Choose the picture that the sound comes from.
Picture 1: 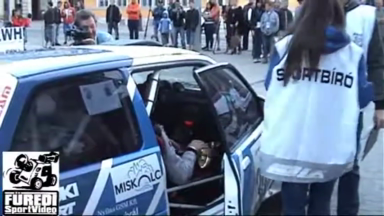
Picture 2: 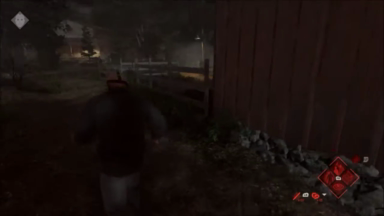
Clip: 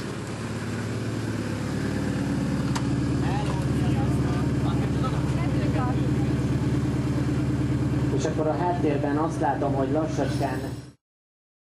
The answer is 1